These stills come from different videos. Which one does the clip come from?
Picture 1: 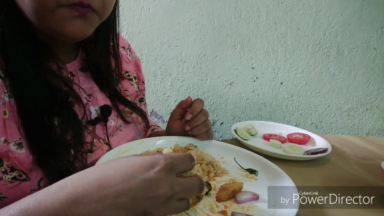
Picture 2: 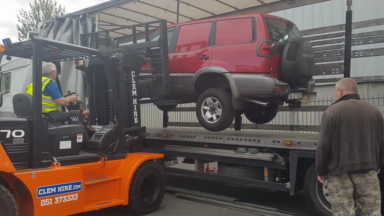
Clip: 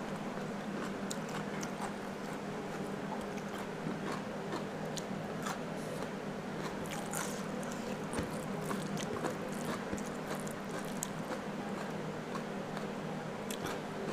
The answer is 1